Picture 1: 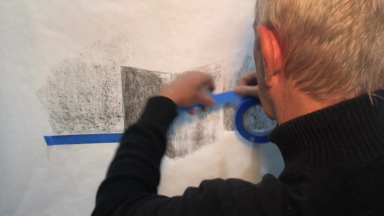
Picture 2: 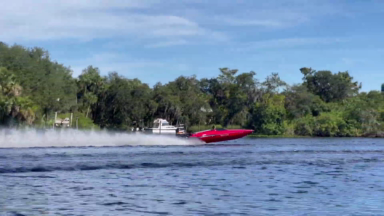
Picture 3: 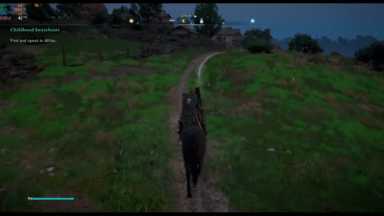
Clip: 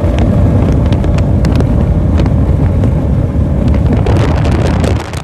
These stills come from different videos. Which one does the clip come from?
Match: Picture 2